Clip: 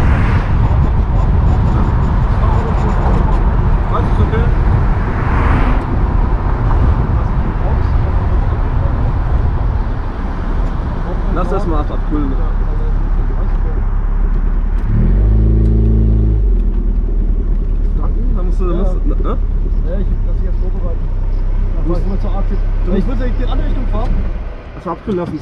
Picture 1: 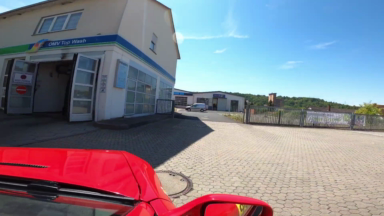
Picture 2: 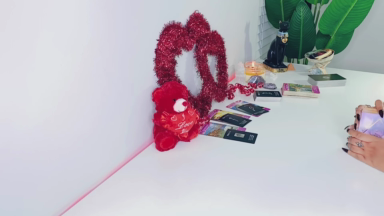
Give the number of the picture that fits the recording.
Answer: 1